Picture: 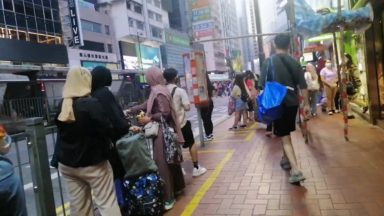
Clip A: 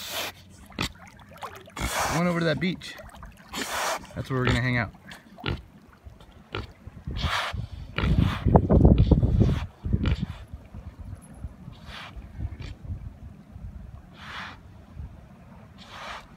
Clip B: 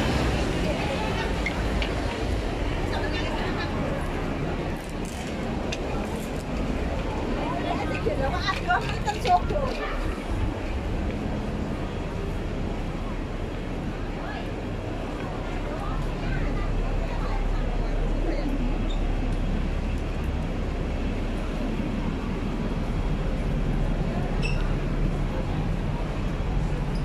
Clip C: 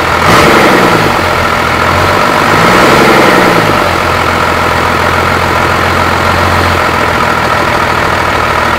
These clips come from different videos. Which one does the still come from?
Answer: B